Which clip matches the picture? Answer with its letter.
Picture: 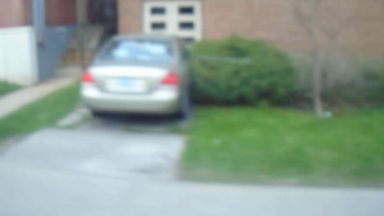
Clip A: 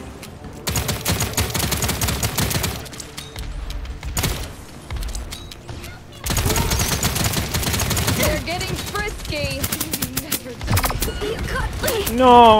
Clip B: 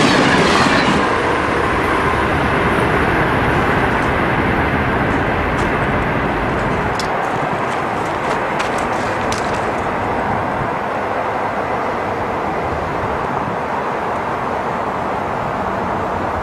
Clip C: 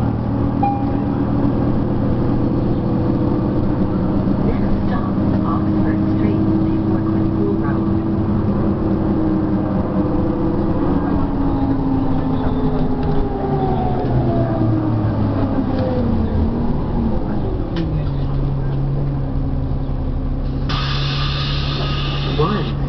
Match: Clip C